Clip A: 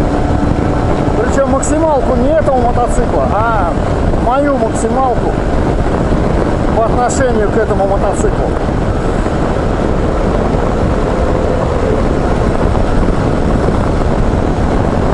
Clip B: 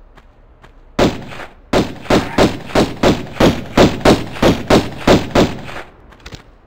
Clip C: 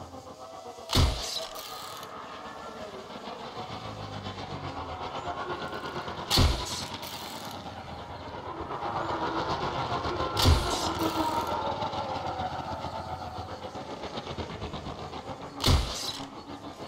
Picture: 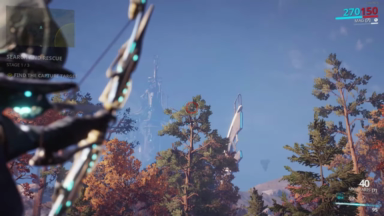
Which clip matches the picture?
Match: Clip C